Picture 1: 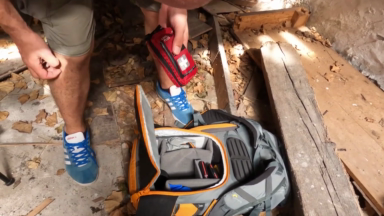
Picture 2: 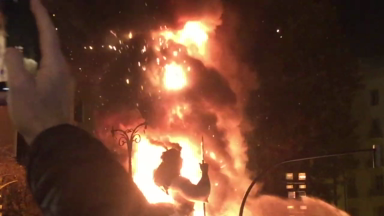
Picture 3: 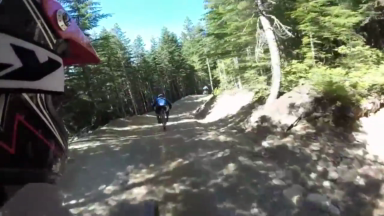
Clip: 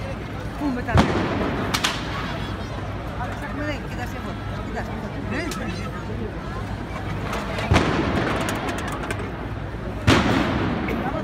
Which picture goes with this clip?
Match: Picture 2